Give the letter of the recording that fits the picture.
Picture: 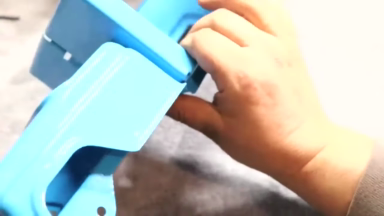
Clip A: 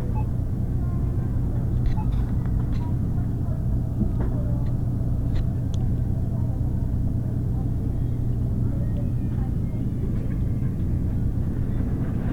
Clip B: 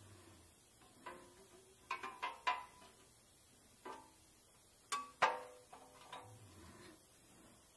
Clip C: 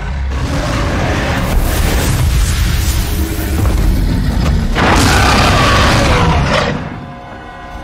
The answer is B